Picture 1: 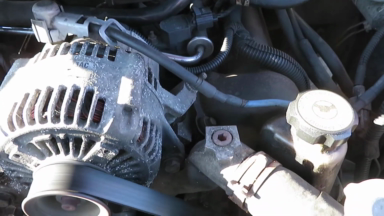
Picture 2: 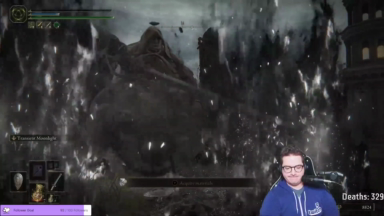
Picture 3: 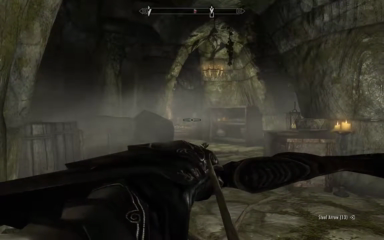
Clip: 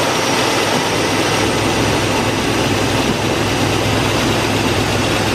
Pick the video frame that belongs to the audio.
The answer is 1